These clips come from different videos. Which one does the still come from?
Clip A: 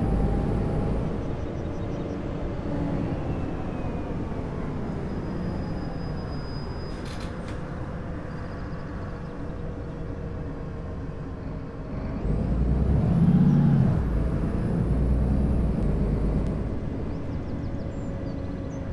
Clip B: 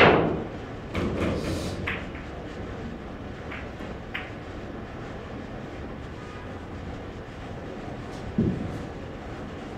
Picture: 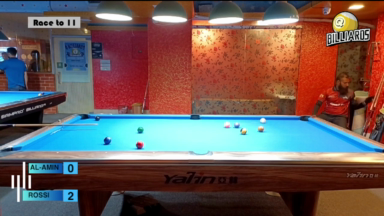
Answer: B